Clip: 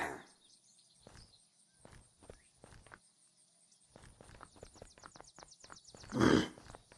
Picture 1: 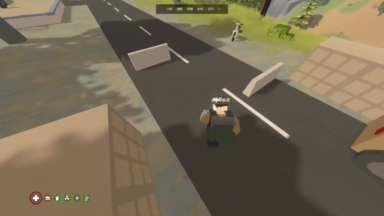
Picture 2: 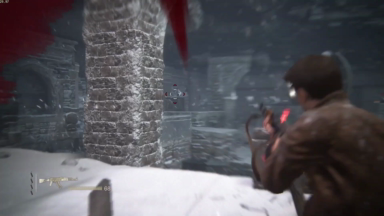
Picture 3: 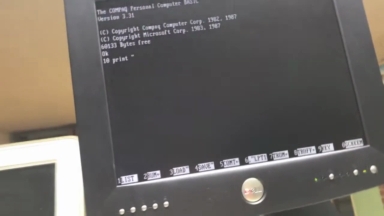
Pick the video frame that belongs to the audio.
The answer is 1